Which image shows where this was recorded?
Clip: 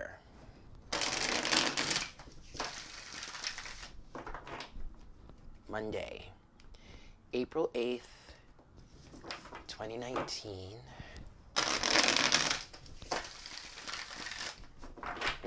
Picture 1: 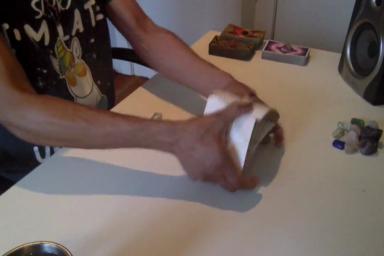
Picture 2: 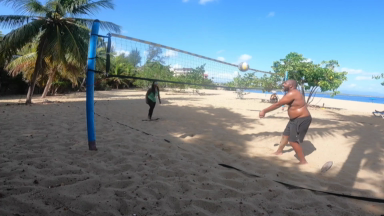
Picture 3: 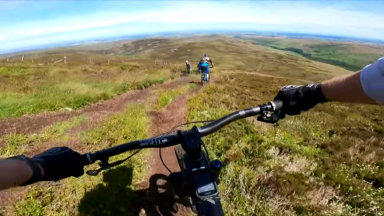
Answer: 1